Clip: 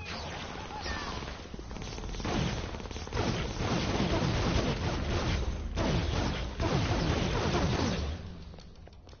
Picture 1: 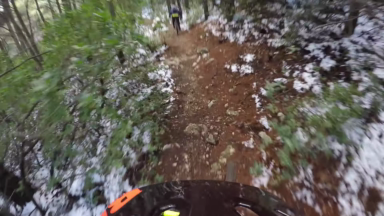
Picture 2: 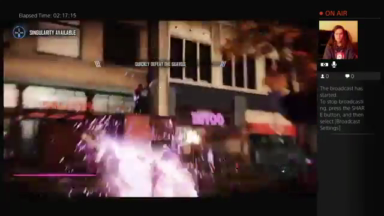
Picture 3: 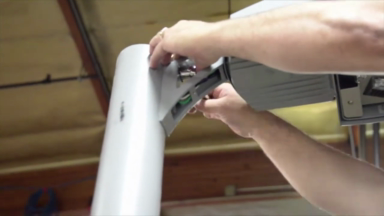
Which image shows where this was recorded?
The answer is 2